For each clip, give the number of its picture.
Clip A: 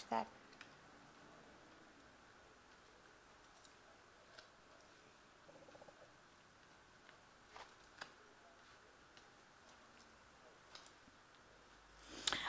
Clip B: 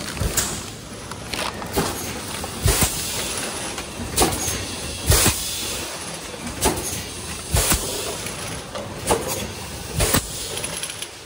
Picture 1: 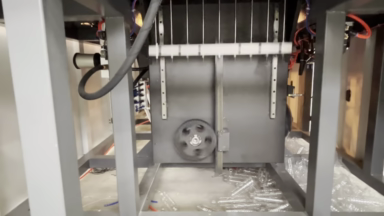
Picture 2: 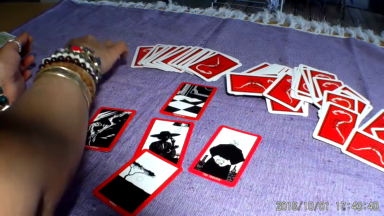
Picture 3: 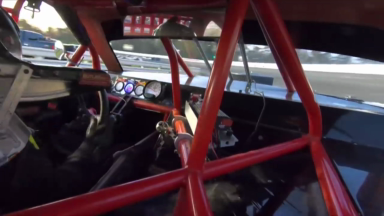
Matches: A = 2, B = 1